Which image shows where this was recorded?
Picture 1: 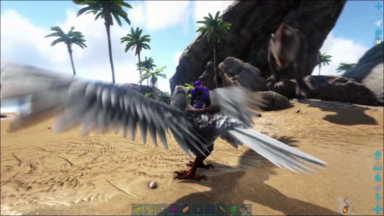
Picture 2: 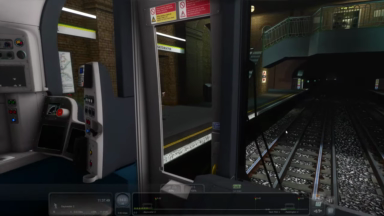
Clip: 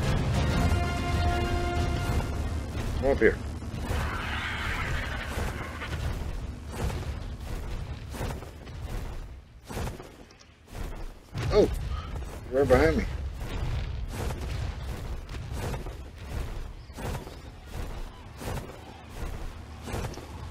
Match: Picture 1